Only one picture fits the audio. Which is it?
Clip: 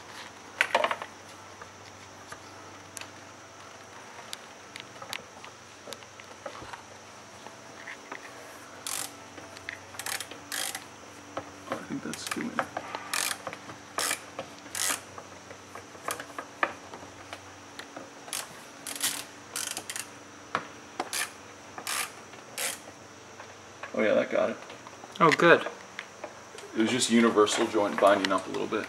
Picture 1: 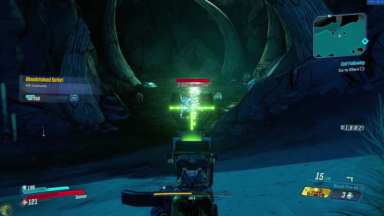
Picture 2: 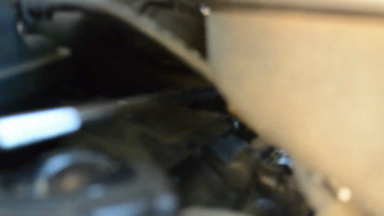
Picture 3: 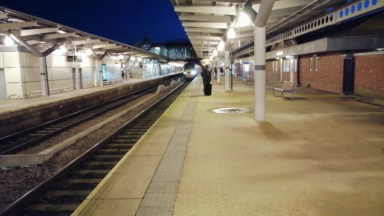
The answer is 2